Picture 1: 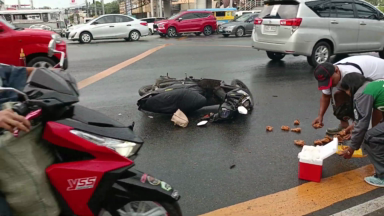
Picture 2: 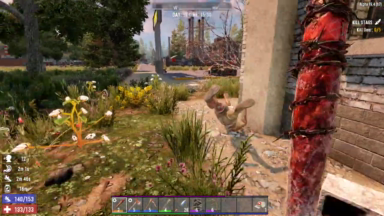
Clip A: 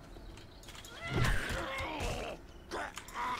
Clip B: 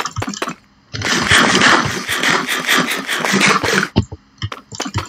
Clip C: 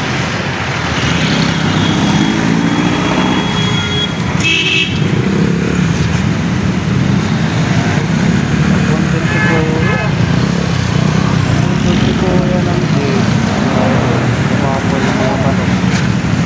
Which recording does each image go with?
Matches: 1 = C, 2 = A